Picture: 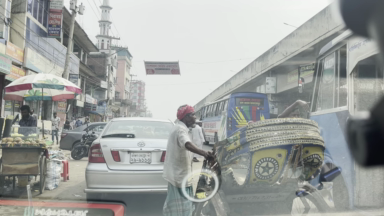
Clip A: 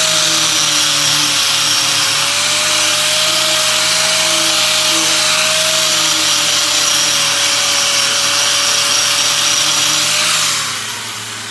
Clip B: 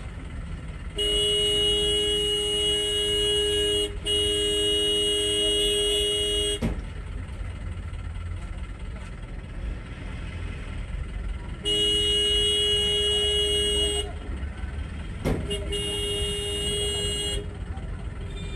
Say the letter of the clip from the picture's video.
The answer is B